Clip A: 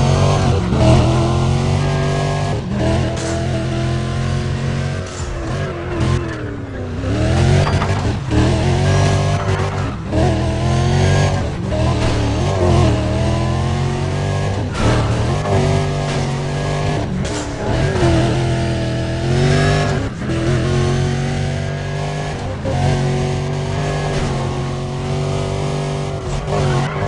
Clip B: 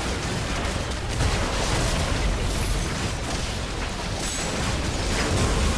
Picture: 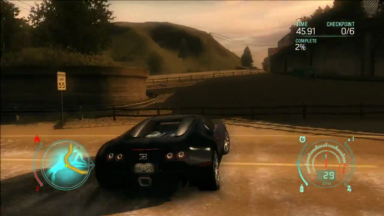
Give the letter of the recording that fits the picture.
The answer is A